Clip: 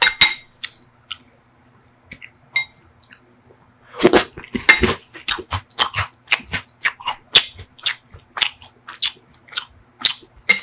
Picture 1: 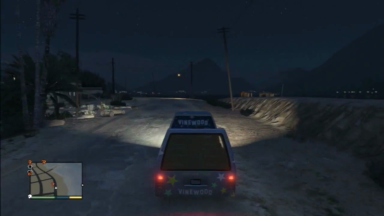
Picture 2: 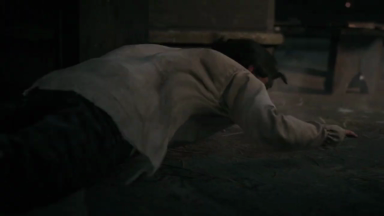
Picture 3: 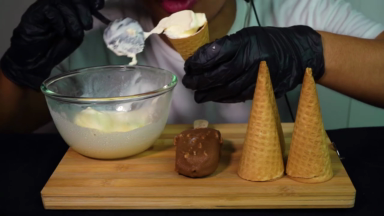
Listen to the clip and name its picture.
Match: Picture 3